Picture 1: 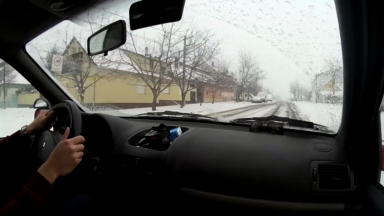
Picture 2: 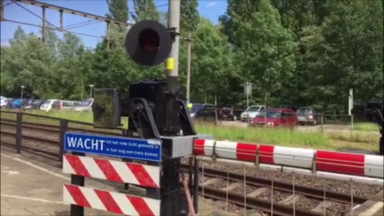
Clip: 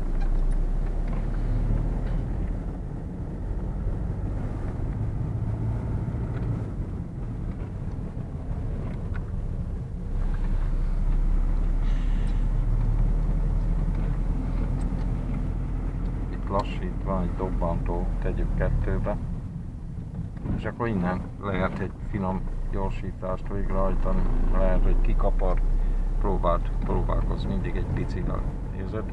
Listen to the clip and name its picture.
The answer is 1